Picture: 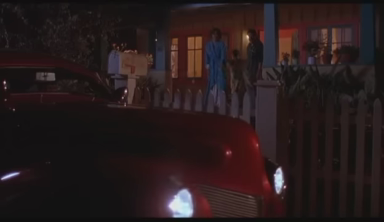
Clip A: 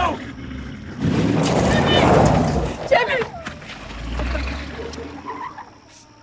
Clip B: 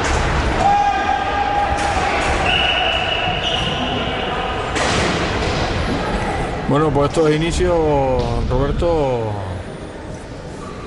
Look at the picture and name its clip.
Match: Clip A